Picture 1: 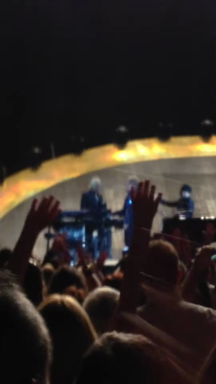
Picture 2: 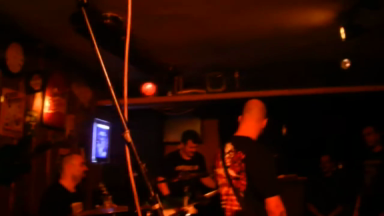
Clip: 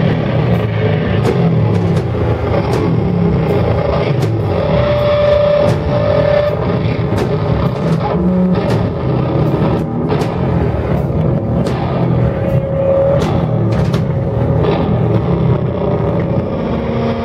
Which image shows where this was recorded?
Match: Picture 2